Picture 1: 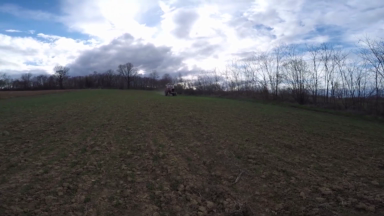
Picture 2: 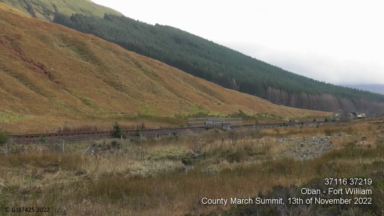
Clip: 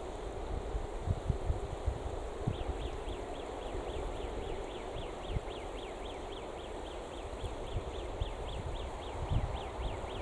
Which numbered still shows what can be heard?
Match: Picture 2